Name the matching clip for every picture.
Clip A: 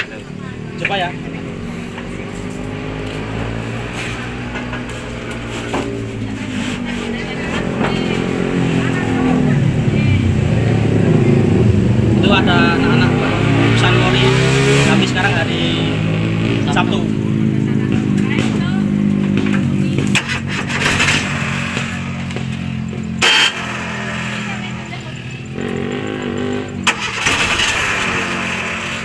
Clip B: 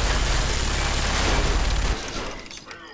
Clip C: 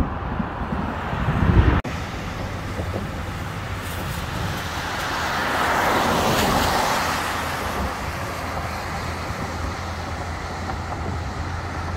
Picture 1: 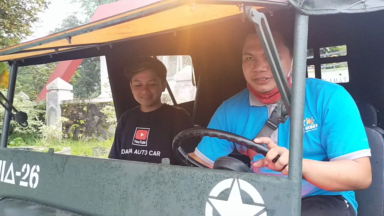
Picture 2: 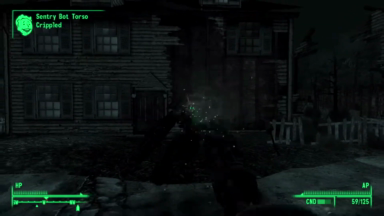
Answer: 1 A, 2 B